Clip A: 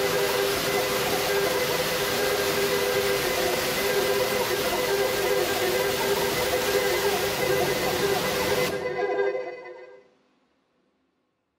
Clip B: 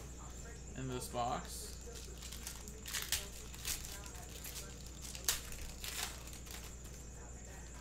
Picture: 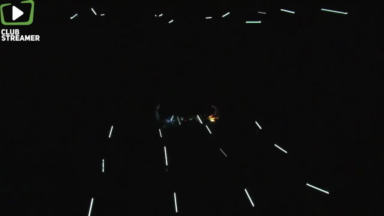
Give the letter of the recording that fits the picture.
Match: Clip A